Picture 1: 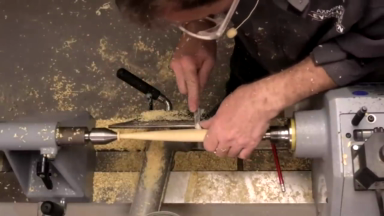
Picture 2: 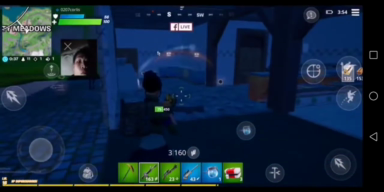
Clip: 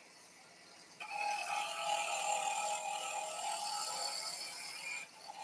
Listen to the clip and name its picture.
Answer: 1